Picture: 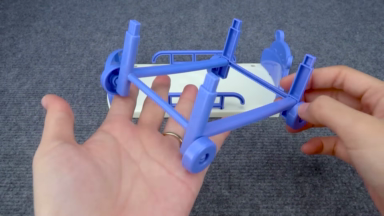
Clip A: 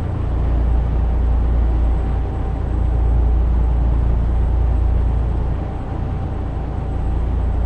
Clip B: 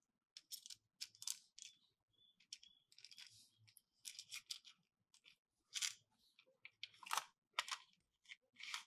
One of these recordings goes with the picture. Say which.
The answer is B